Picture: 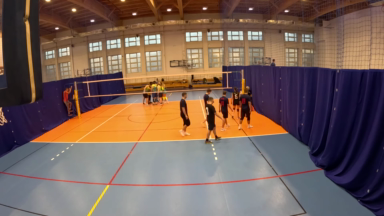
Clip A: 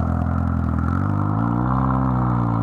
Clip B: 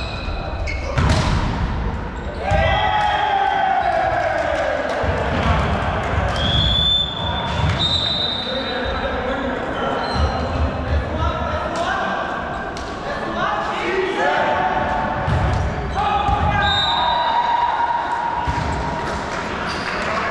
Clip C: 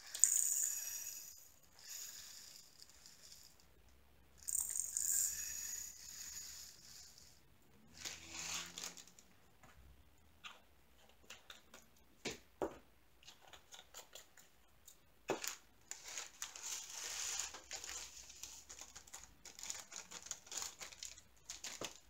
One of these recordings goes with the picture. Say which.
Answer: B